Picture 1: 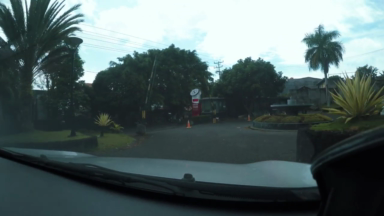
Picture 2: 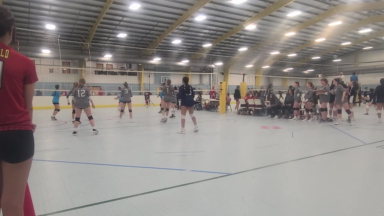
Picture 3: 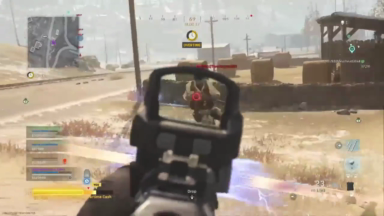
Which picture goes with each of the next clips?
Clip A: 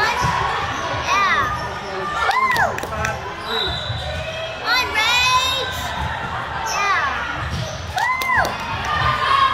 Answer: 2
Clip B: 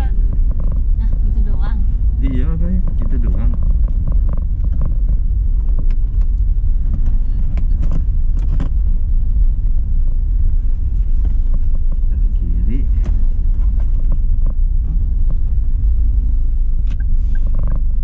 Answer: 1